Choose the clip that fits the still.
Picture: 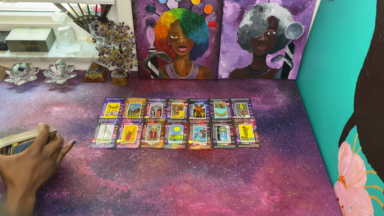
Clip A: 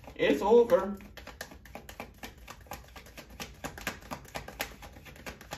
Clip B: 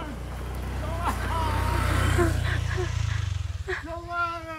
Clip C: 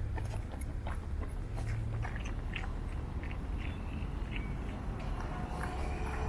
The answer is A